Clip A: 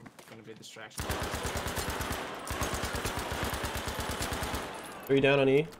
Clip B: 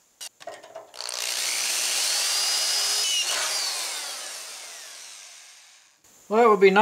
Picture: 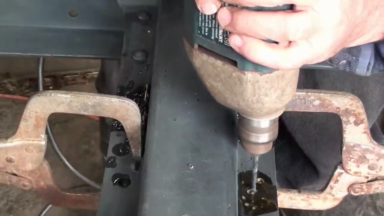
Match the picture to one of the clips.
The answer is B